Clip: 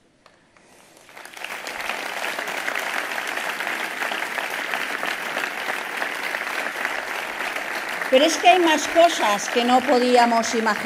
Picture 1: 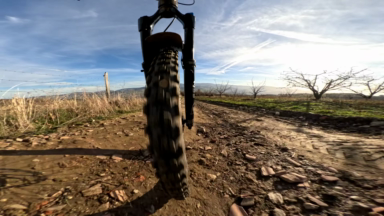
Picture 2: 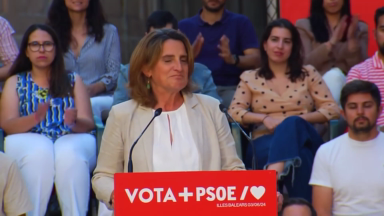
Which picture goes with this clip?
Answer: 2